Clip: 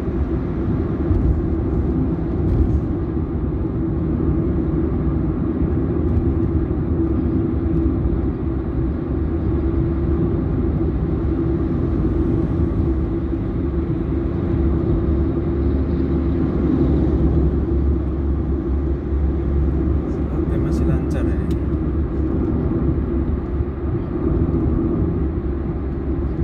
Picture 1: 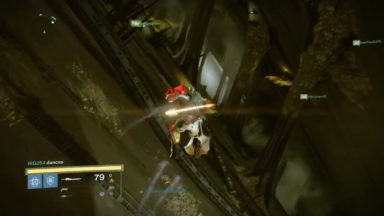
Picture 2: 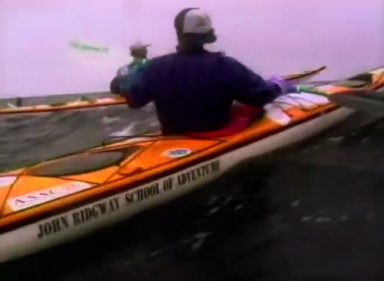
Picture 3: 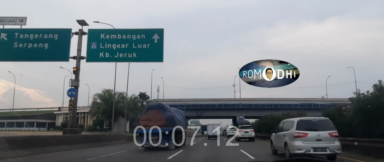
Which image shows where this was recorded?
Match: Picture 3